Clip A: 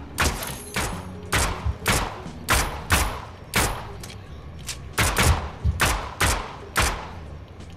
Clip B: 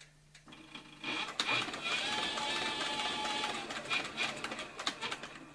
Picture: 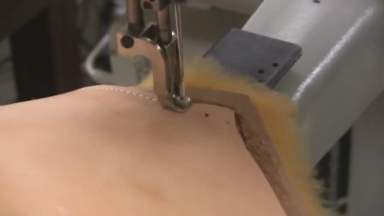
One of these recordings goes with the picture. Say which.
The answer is B